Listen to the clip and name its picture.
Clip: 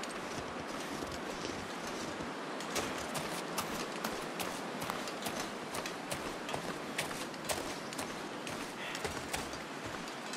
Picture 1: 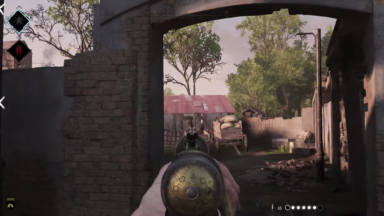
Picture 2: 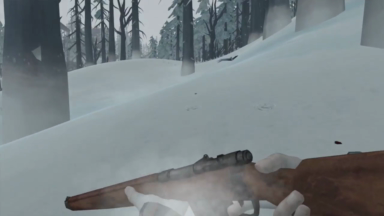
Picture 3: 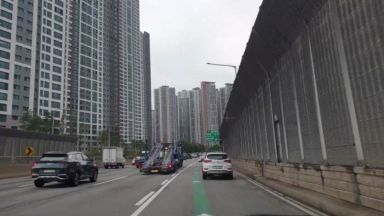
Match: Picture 2